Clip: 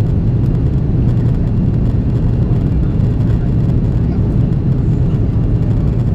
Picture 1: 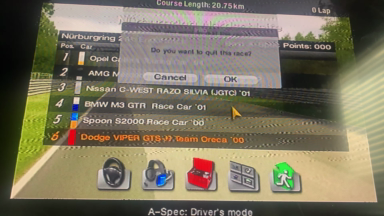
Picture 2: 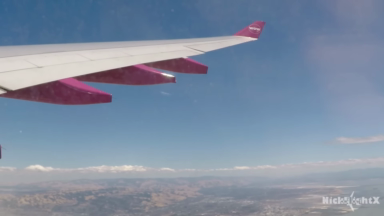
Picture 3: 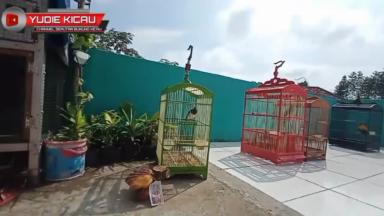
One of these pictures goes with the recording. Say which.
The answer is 2